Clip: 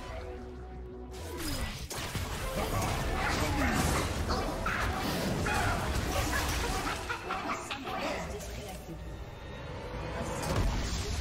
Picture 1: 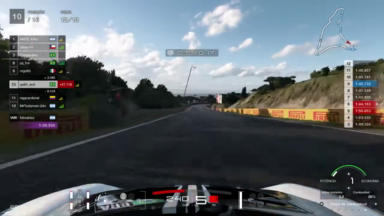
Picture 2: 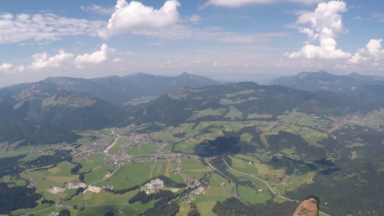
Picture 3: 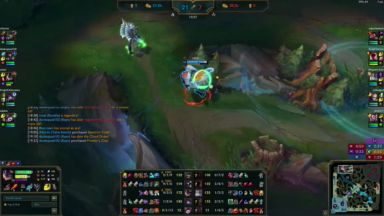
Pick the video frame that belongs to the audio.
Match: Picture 3